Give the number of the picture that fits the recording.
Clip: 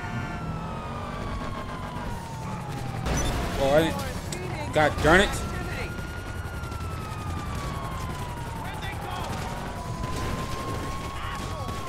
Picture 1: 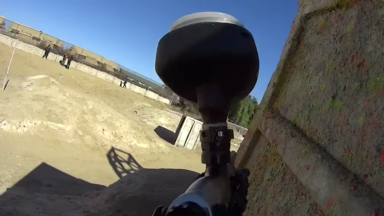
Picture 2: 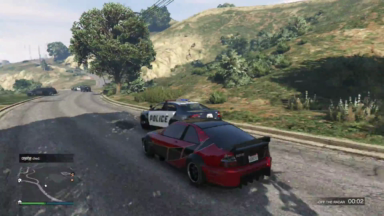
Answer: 2